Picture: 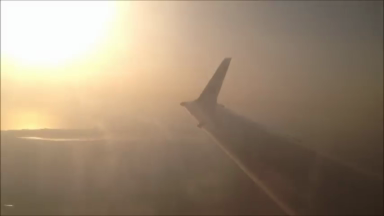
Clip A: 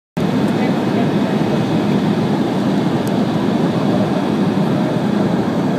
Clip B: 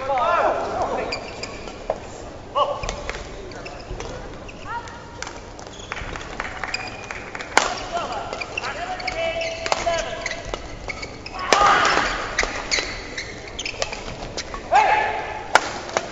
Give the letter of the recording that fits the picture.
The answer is A